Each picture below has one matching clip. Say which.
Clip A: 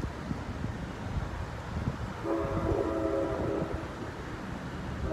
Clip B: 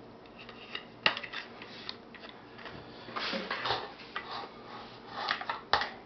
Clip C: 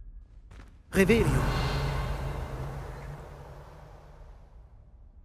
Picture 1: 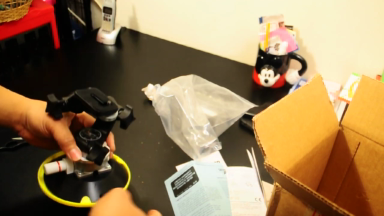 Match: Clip B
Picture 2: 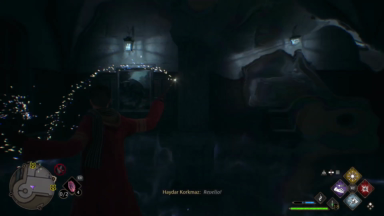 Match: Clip C